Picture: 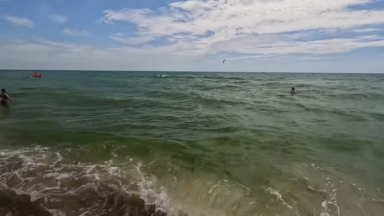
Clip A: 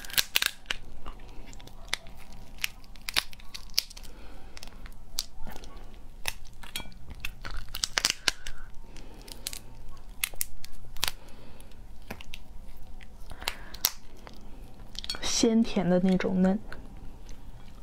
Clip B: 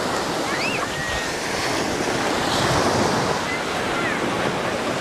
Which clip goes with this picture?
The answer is B